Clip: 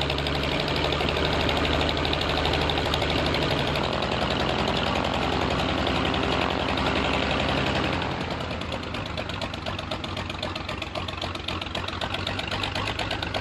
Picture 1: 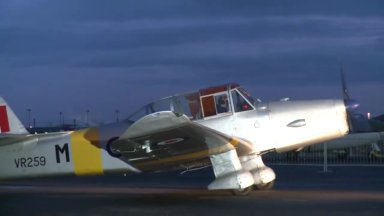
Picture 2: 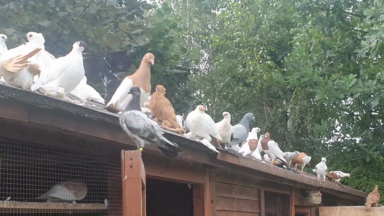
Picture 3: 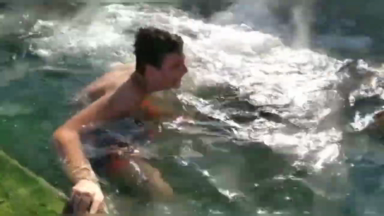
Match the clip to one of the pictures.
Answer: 1